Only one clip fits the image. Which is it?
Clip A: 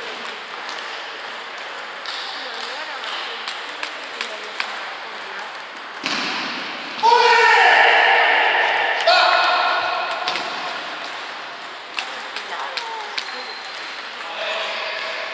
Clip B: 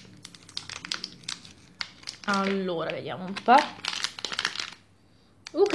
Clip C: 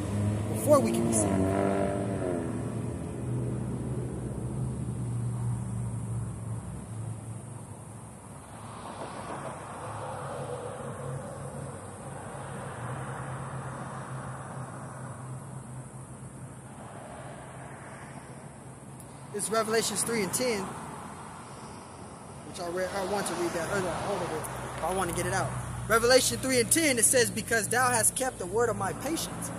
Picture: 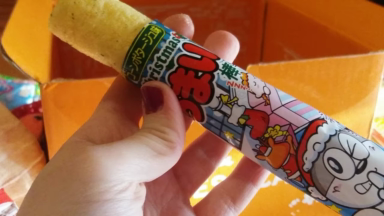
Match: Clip B